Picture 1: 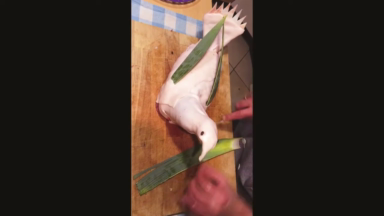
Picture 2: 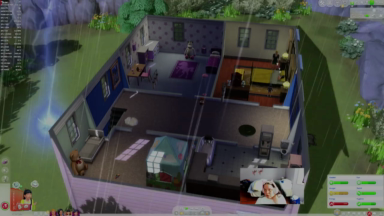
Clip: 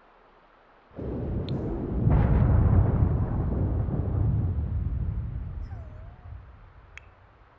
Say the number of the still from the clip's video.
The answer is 2